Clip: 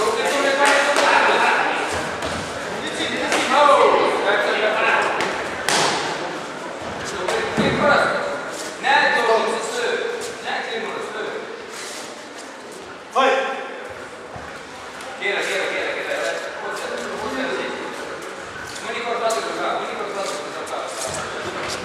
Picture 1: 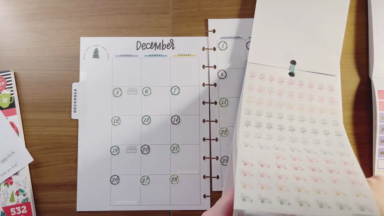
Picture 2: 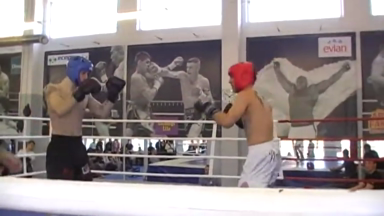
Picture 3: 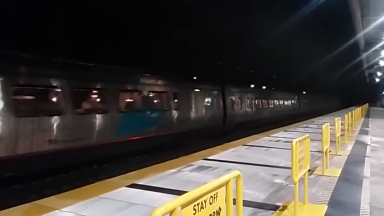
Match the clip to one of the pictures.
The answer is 2